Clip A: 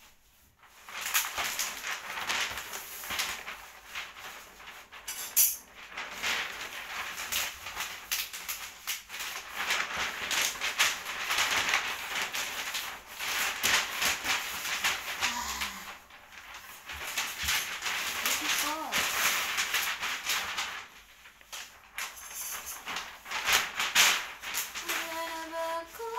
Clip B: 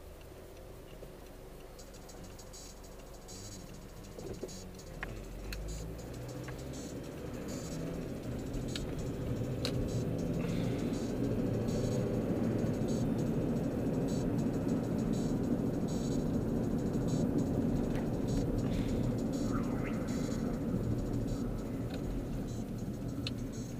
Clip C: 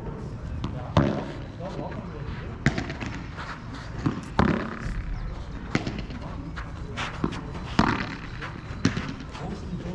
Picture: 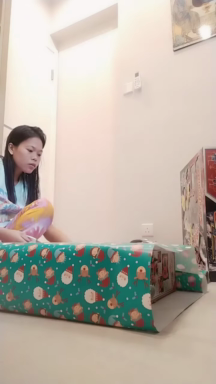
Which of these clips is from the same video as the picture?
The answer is A